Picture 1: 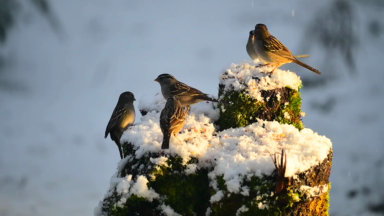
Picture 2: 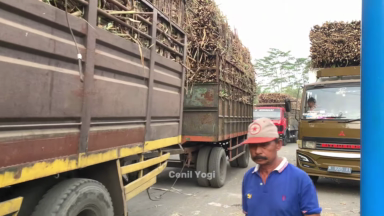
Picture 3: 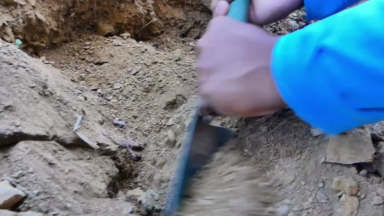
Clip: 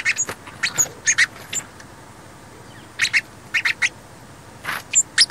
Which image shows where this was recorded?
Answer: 1